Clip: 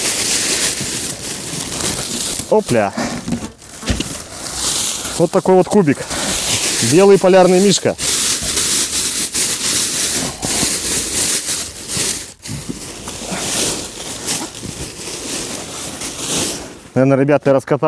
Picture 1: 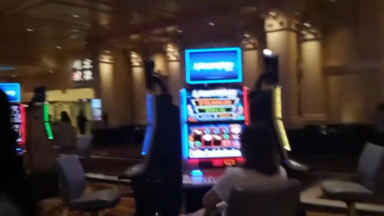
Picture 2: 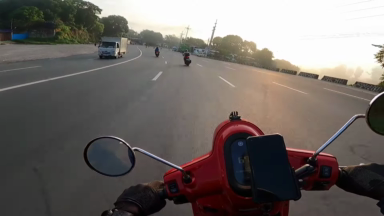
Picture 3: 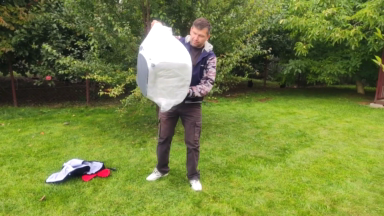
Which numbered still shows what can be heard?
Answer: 3